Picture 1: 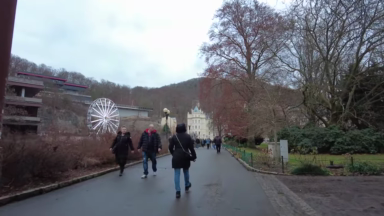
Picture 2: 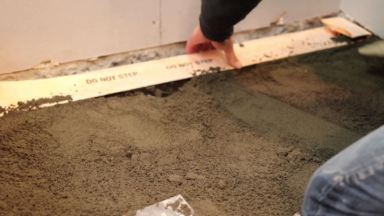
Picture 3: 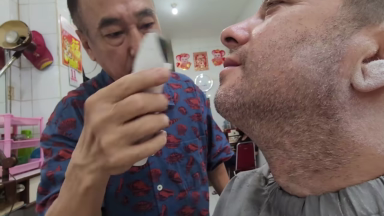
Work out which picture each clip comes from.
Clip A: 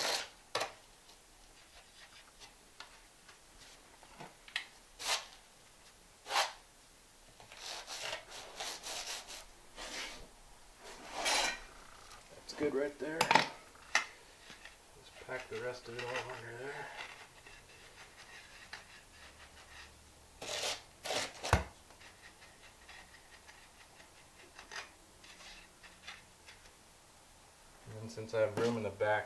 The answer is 2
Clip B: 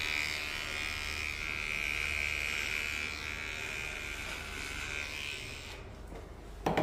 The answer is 3